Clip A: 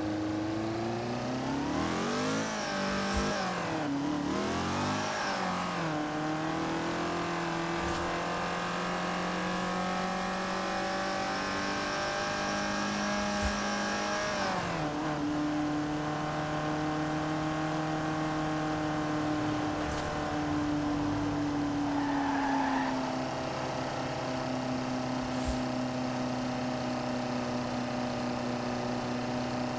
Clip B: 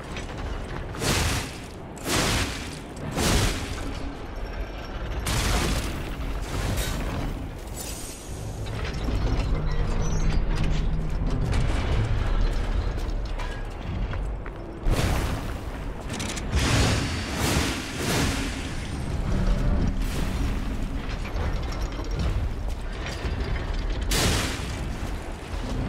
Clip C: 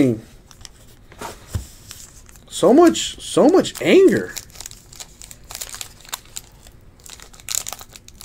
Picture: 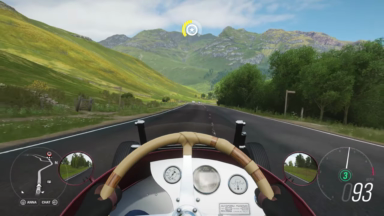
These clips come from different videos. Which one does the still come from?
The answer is A